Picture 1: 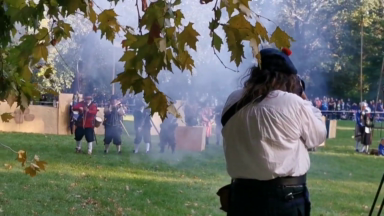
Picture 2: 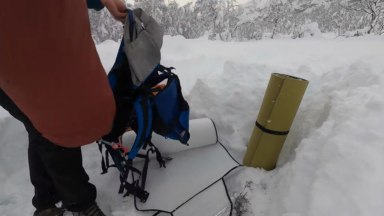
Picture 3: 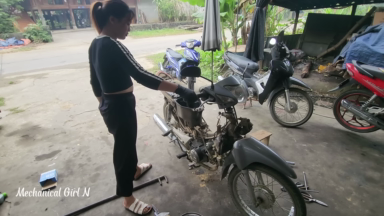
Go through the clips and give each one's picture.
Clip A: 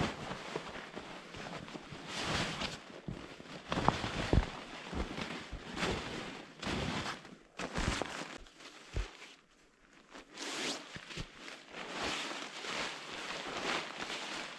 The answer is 2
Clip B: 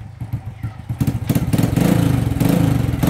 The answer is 3